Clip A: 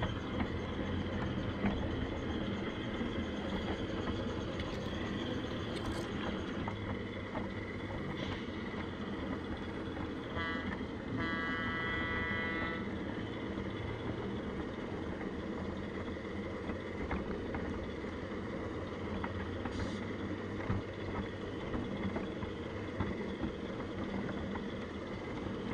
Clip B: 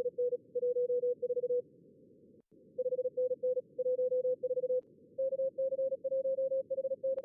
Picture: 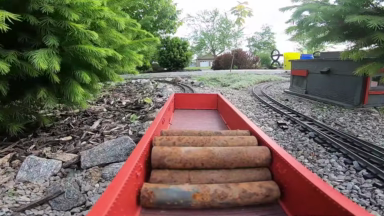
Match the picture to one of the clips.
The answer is A